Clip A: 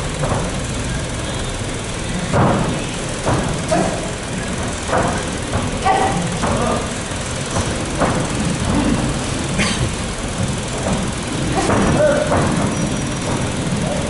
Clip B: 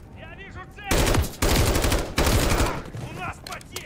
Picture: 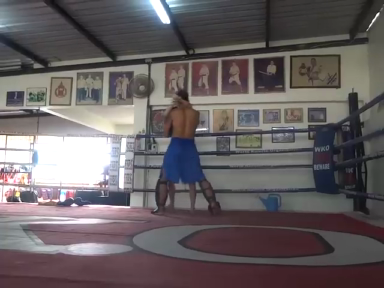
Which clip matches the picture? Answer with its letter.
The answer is A